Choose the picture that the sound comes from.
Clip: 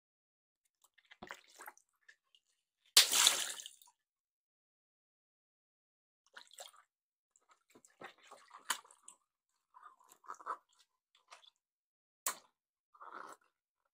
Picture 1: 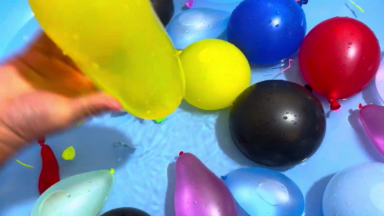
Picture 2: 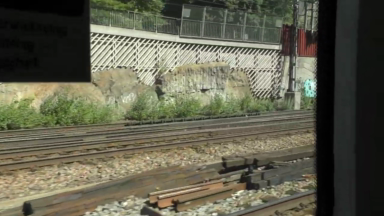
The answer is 1